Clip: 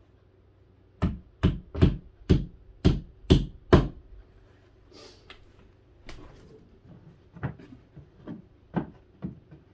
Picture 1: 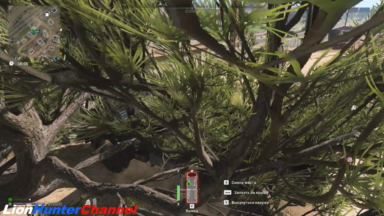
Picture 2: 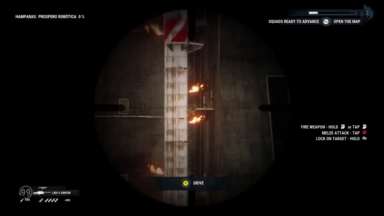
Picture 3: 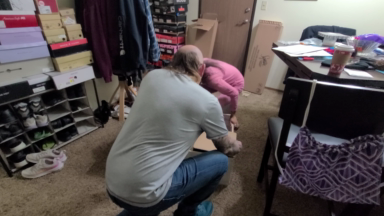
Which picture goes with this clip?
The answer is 3